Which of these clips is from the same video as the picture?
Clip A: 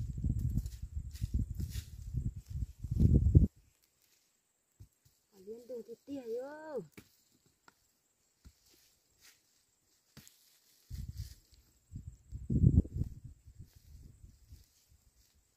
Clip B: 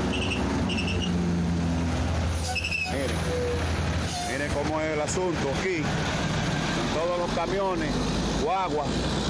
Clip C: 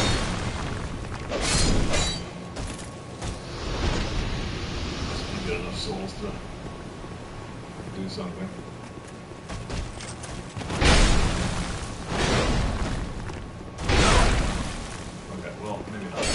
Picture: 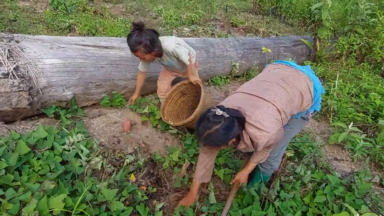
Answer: A